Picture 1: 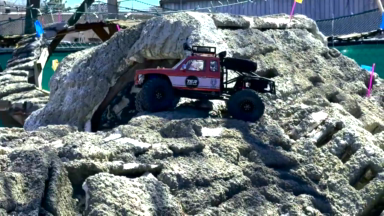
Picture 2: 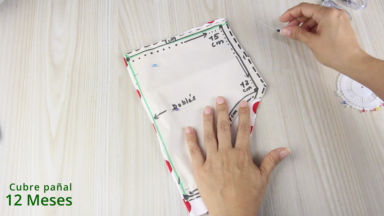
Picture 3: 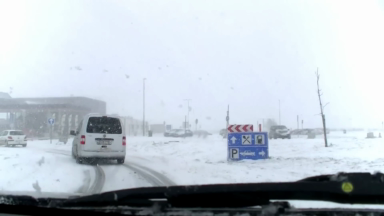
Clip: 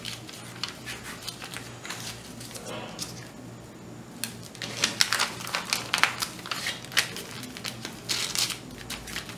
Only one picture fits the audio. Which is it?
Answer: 2